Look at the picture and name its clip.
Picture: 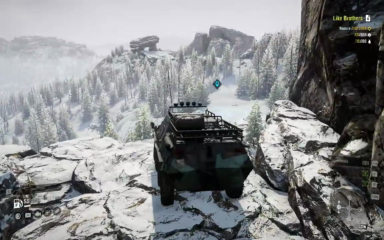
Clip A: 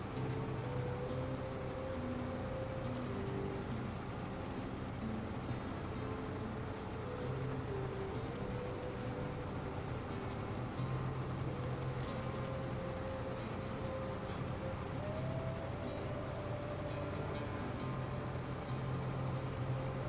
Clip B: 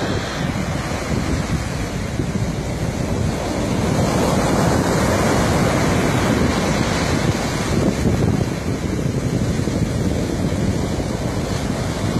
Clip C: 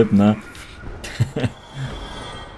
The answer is A